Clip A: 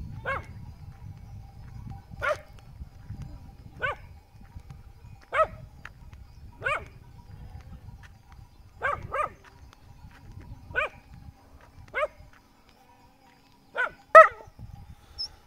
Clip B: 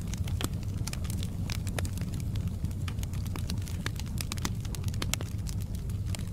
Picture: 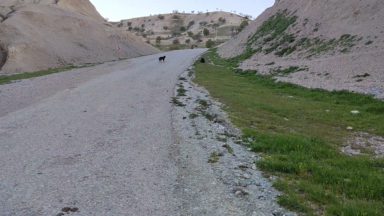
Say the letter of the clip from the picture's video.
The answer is A